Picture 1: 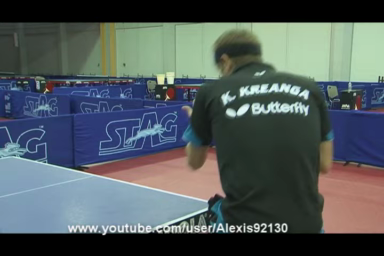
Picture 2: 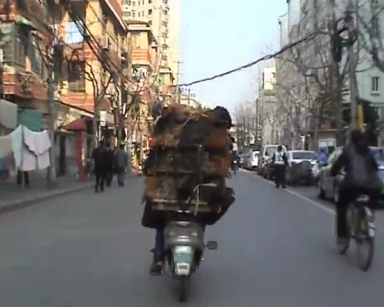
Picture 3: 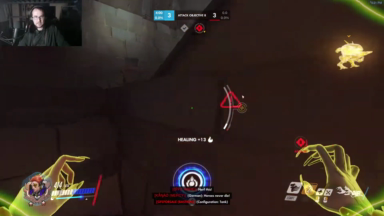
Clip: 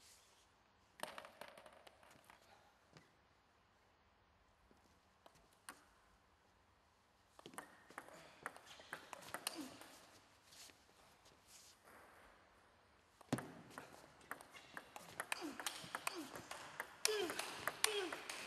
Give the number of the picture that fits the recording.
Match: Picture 1